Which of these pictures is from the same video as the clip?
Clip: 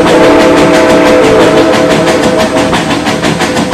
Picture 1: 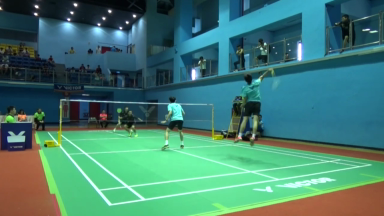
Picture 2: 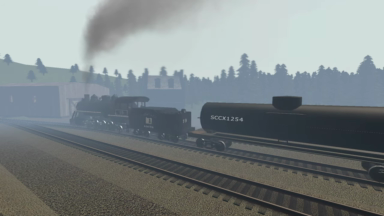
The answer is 2